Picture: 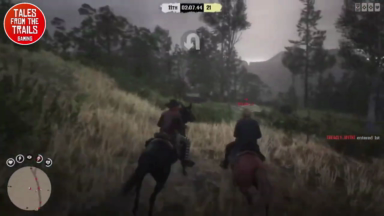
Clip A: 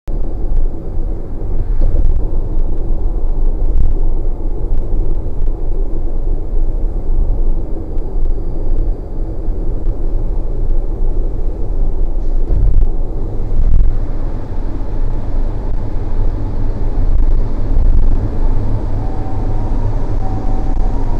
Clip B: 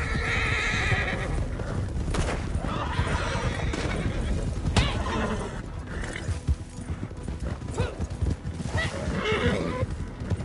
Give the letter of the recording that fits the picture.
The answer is B